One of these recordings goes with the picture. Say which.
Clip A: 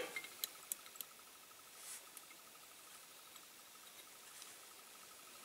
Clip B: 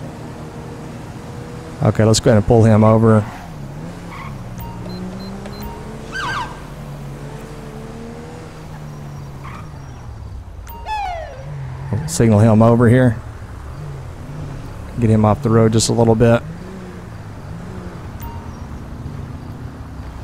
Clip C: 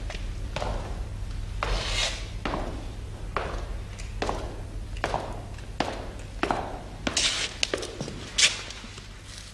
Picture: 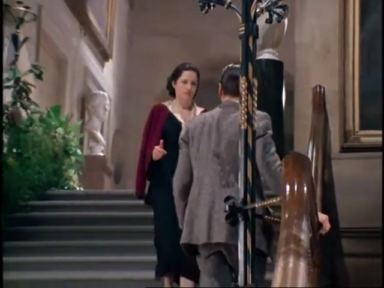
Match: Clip C